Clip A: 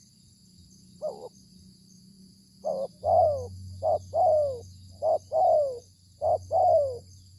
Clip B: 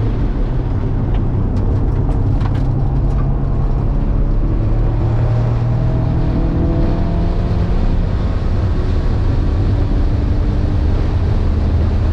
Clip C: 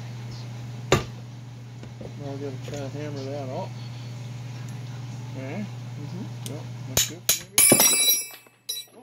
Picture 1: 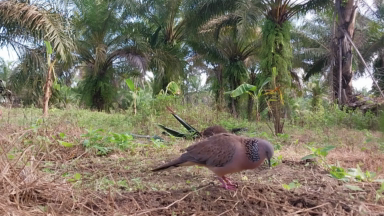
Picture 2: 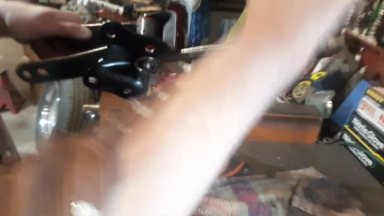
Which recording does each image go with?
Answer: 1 A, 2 C